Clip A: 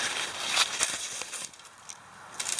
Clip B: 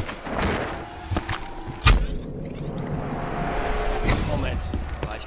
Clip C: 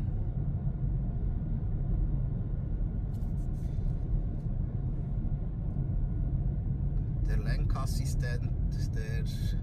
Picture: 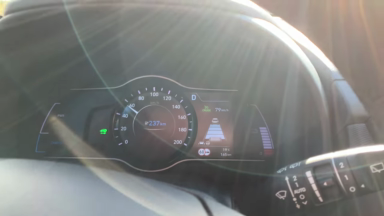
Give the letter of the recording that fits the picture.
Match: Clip C